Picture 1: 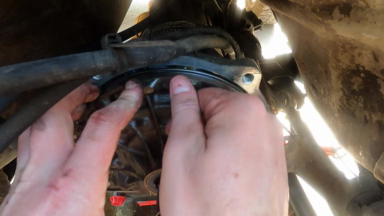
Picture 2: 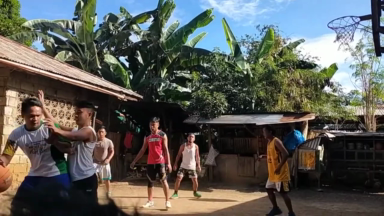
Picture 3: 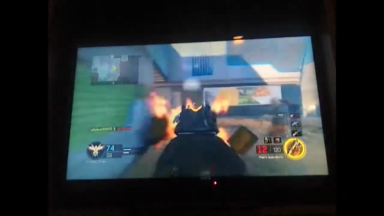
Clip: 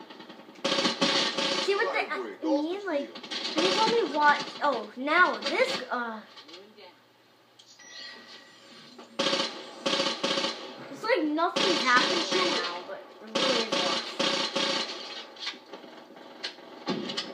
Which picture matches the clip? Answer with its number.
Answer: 3